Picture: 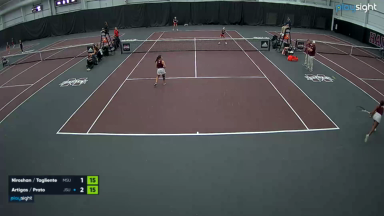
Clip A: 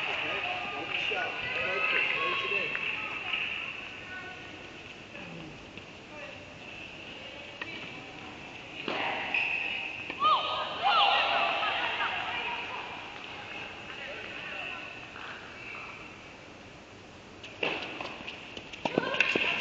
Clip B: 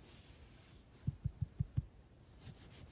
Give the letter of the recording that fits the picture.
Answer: A